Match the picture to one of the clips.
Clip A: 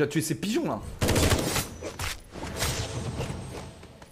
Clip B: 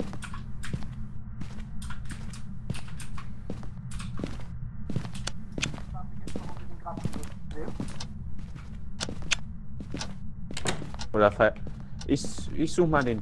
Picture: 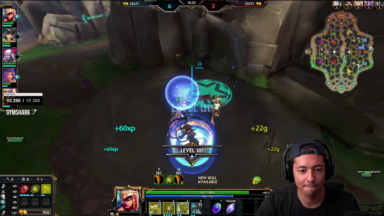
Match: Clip A